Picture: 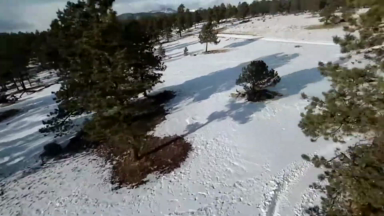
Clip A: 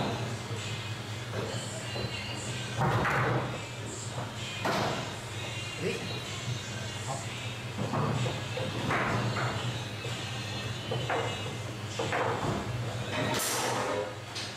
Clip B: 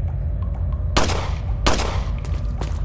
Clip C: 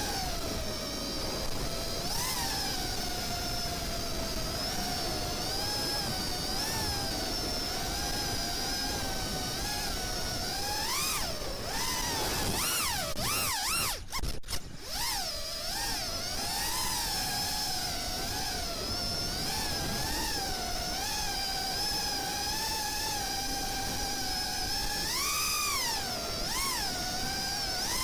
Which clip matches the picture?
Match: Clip C